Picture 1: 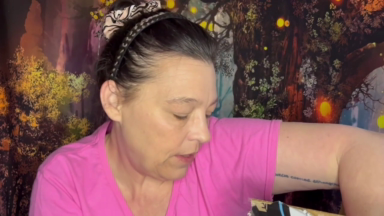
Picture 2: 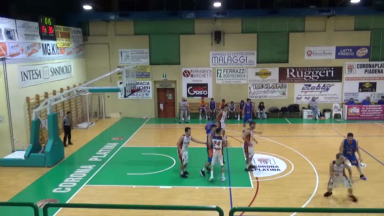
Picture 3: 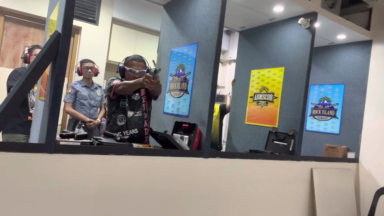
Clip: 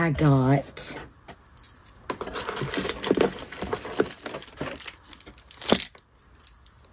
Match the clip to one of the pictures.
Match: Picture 1